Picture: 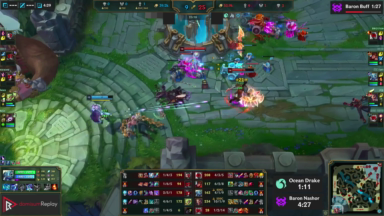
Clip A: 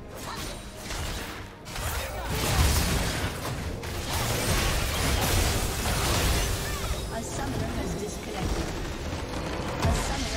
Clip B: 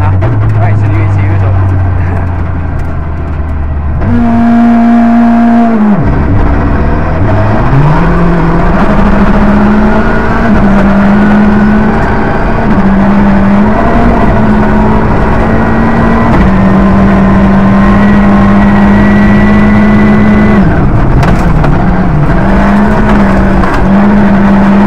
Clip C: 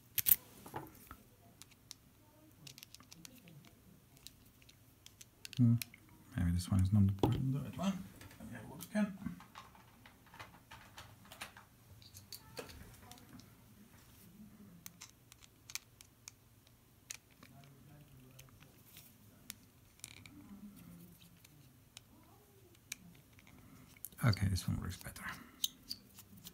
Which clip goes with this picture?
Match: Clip A